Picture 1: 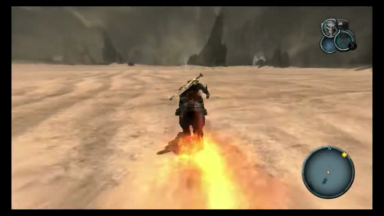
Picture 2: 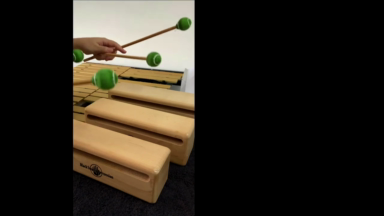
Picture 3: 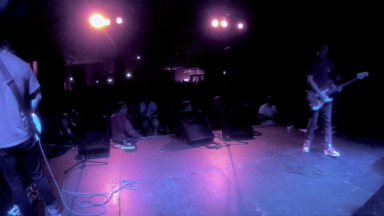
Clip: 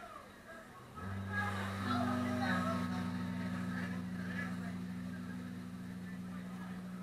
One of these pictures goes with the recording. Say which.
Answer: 3